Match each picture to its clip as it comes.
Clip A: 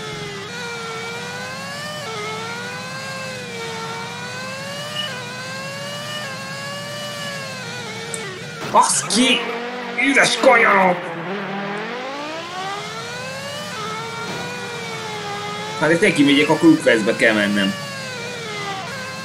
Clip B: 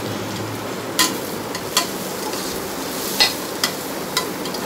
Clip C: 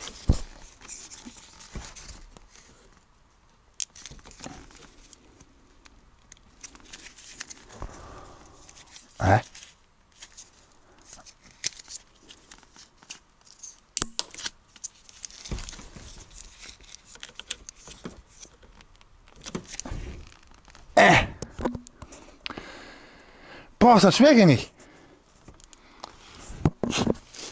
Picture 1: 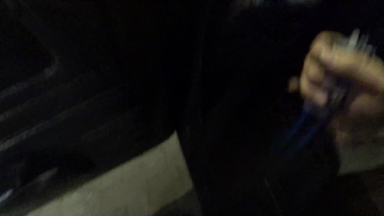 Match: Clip C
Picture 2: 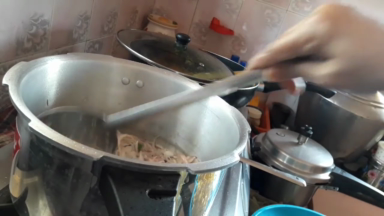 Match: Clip B